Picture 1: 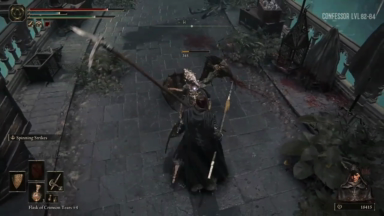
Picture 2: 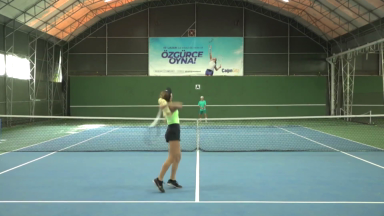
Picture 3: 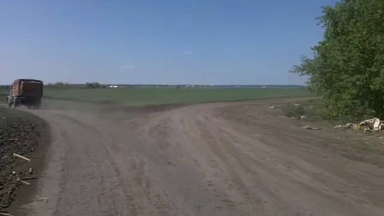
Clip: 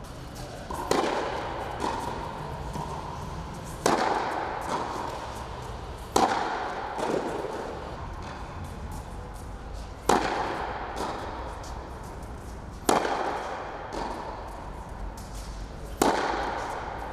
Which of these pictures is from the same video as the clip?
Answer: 2